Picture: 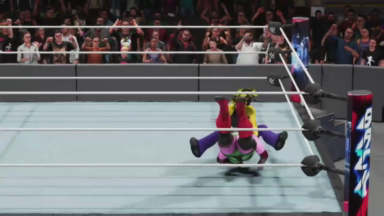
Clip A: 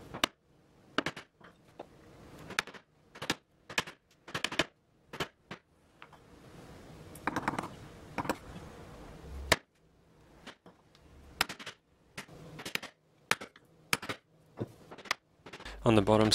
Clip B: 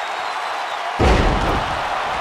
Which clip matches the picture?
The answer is B